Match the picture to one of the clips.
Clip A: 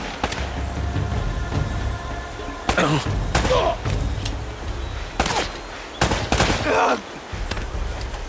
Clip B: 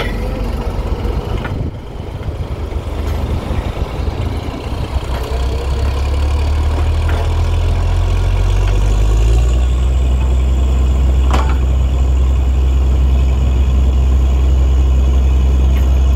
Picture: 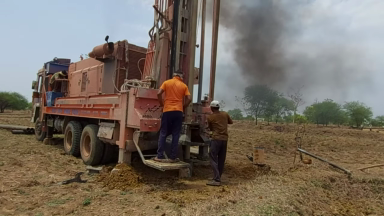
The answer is B